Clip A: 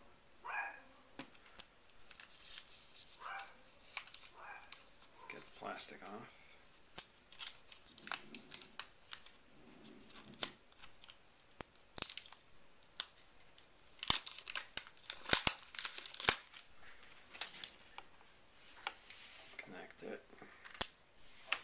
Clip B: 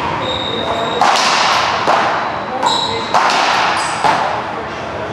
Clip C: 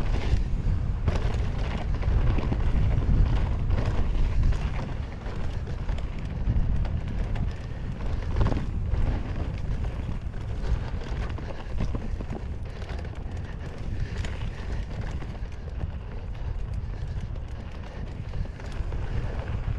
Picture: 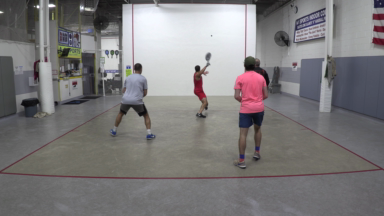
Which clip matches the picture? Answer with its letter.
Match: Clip B